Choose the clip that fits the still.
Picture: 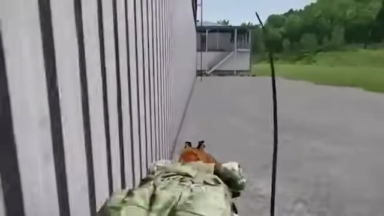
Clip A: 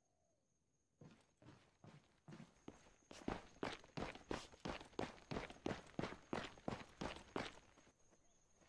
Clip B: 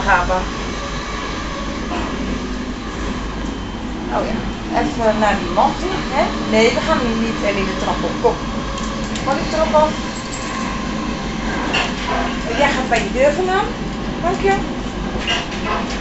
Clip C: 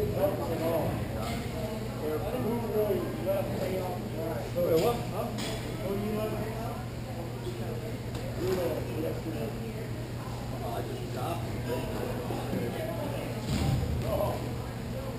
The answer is A